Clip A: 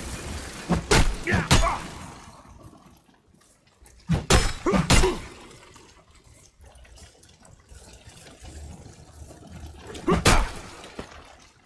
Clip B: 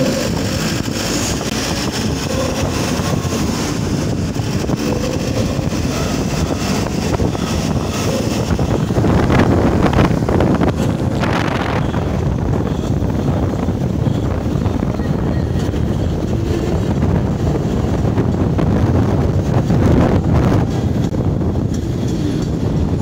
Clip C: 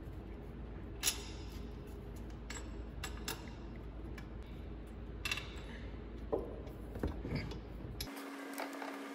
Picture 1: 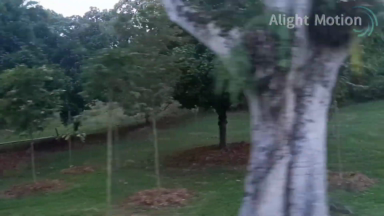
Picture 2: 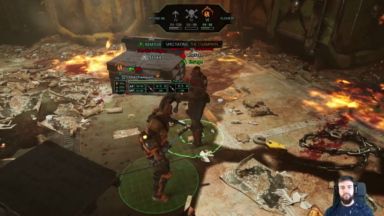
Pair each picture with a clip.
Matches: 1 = B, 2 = A